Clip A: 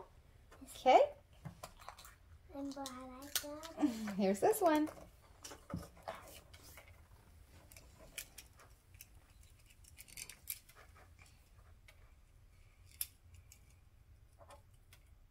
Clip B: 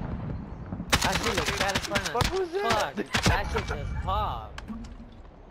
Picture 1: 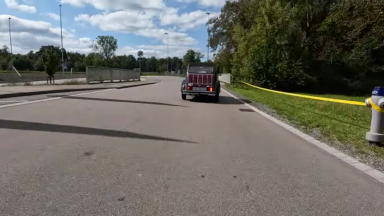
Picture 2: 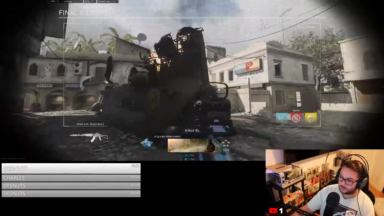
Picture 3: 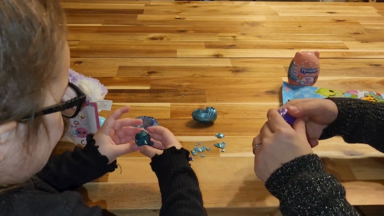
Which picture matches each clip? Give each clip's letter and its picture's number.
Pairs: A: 3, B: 2